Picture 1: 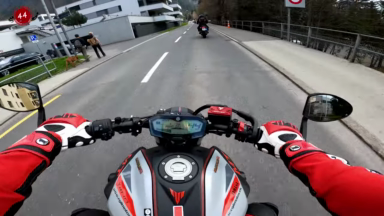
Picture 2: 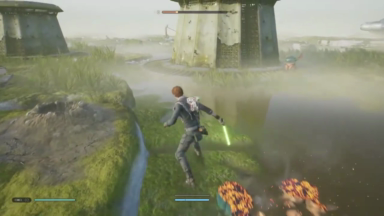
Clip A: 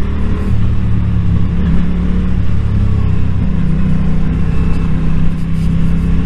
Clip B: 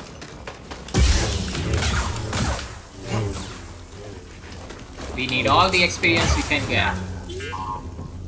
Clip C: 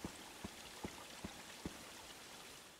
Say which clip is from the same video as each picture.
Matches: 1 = A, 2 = B